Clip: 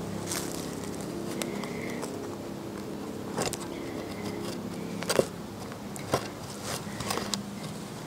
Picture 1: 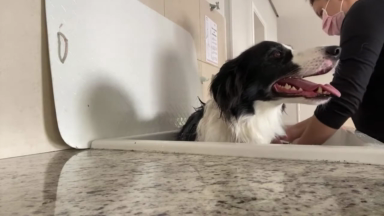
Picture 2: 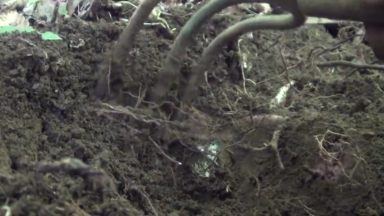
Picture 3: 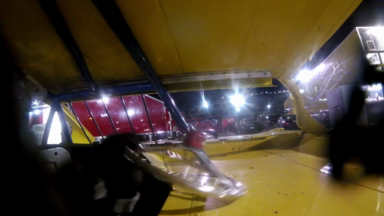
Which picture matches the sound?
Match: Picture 2